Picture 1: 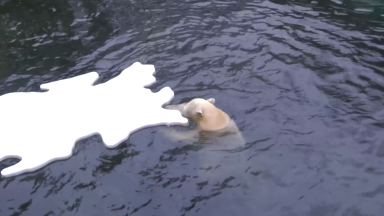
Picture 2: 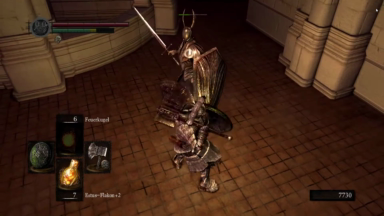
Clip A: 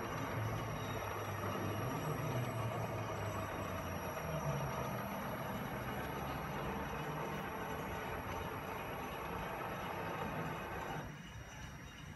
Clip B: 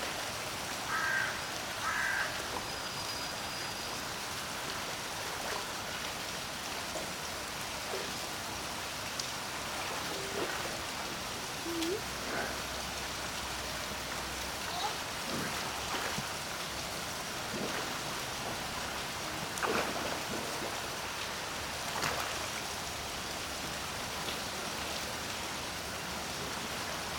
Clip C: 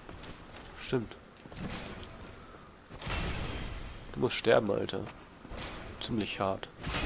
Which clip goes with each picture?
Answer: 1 B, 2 C